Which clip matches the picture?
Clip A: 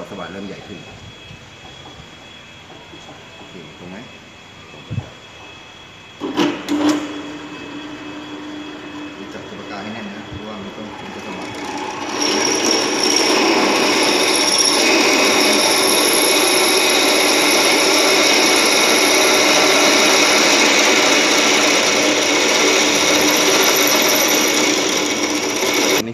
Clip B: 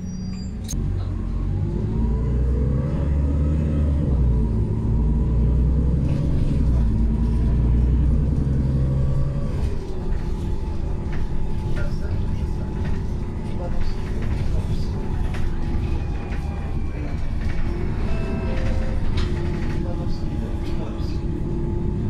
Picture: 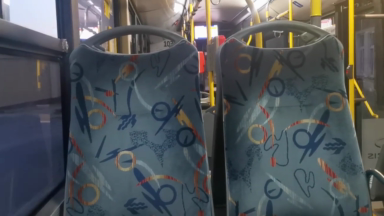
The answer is B